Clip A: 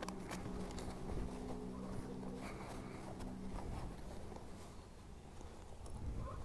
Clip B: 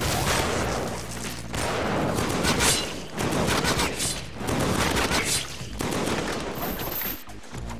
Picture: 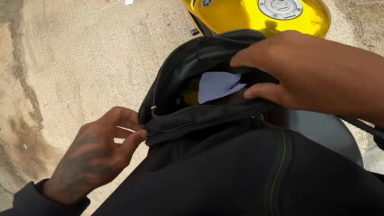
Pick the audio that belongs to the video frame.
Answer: A